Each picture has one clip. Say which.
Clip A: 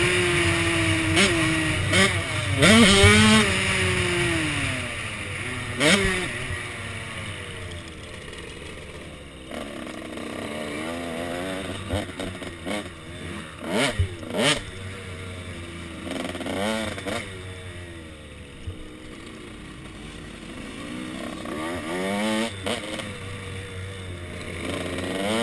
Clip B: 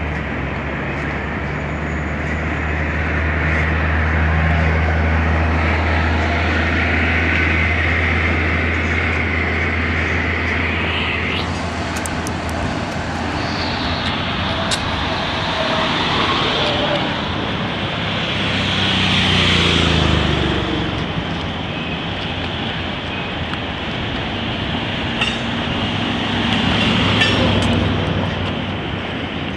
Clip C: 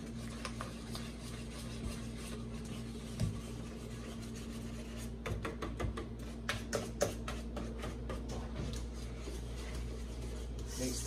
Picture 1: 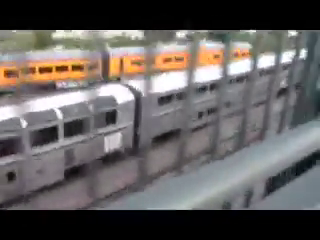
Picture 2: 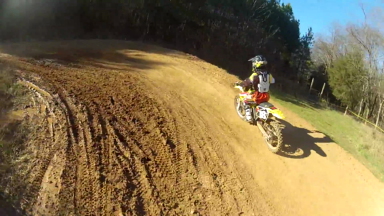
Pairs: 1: B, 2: A